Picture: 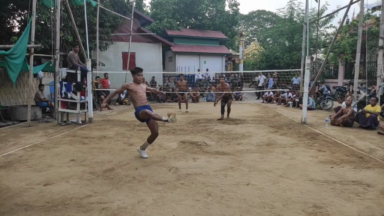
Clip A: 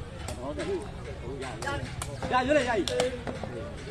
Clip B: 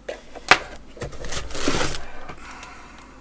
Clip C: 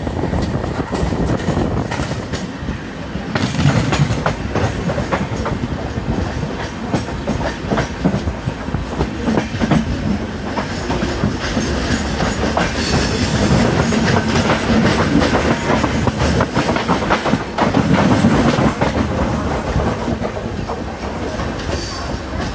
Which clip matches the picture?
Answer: A